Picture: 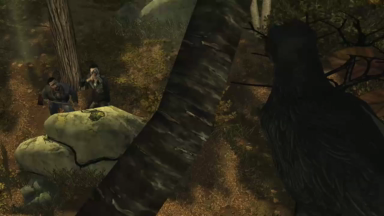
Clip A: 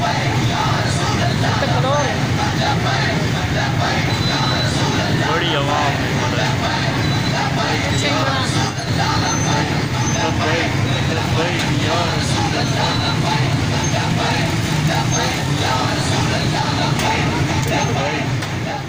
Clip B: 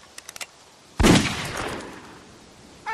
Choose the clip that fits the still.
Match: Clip B